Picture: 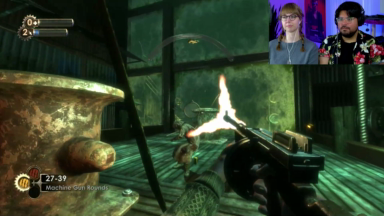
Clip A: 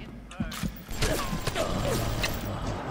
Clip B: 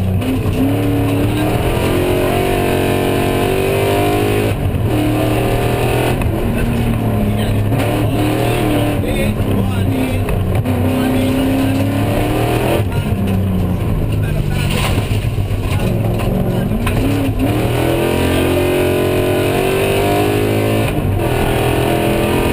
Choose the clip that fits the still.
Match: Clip A